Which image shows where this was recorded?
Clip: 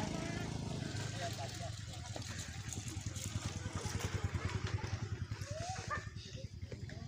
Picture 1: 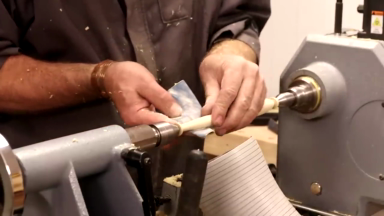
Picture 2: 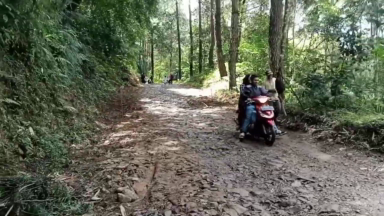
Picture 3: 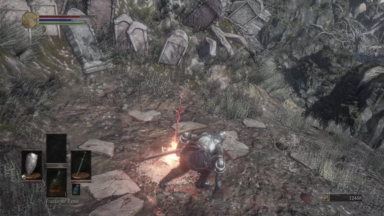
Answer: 2